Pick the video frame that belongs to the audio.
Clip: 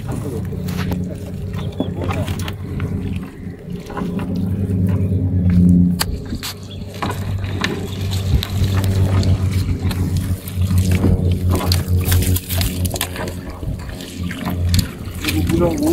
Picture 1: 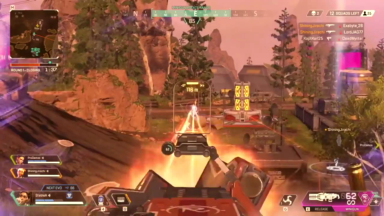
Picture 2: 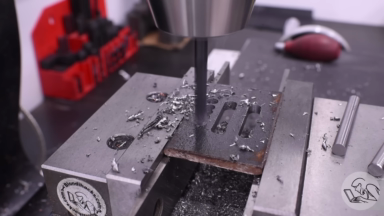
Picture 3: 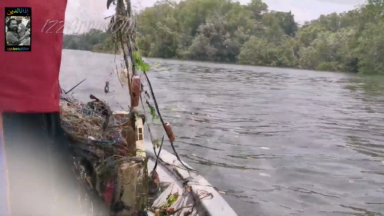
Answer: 3